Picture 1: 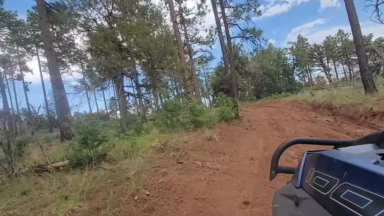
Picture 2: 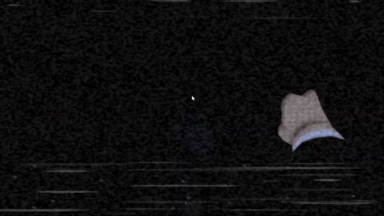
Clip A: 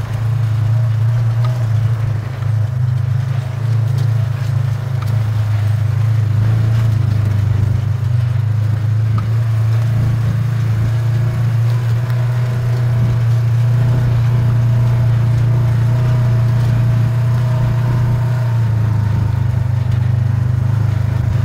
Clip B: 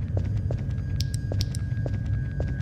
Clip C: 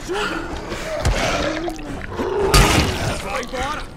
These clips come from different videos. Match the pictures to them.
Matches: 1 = A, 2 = B